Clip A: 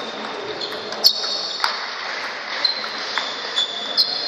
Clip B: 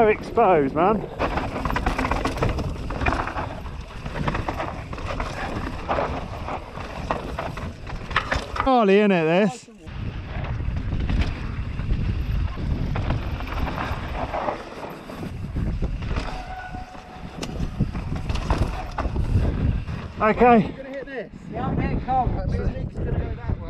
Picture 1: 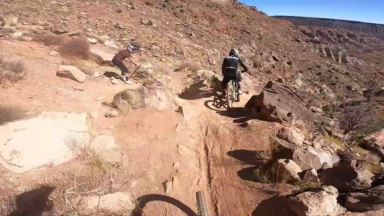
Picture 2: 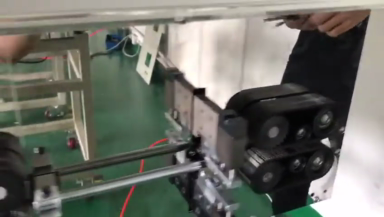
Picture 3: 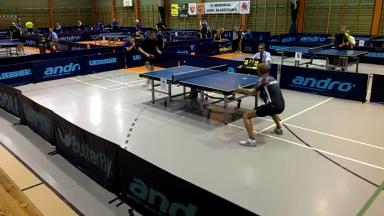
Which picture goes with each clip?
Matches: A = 3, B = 1